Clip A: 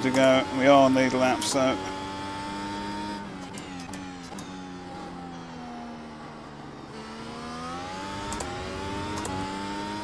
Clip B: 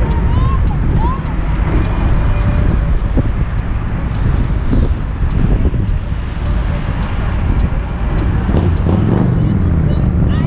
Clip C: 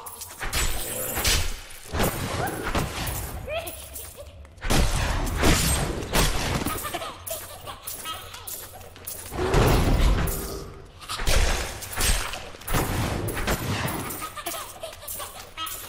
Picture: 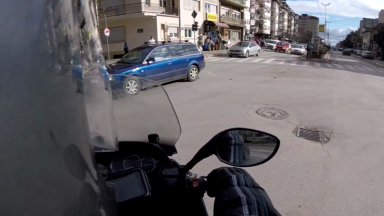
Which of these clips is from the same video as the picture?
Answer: B